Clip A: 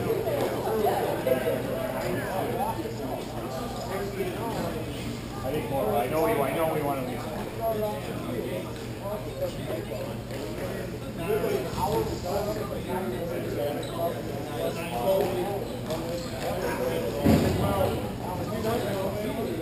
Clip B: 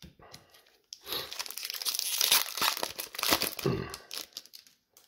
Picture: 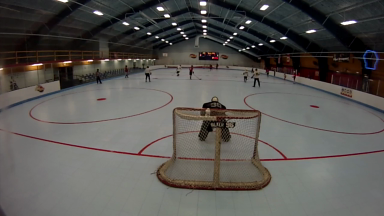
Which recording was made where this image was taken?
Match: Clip A